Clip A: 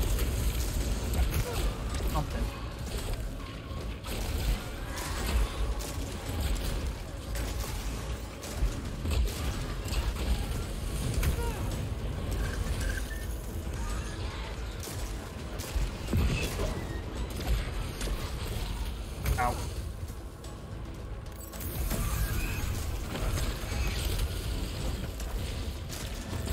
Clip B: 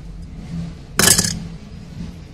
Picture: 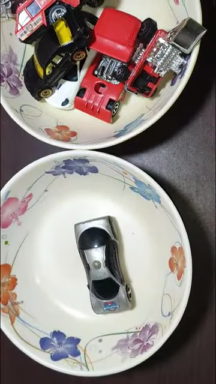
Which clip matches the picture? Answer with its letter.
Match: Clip B